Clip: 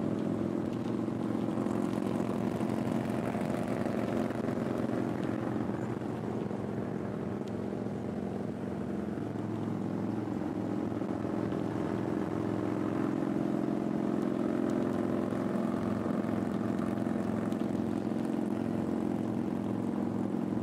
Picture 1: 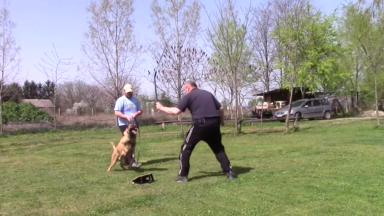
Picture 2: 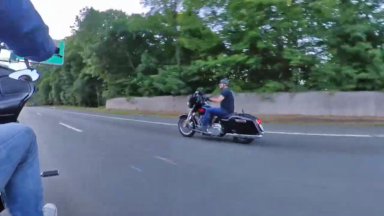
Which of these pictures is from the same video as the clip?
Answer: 2